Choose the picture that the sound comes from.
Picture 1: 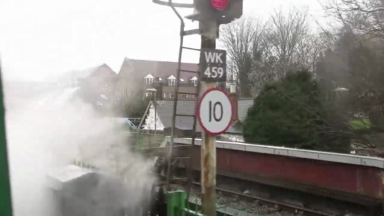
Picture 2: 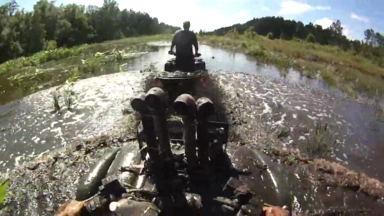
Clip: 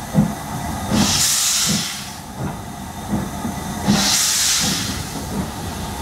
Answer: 1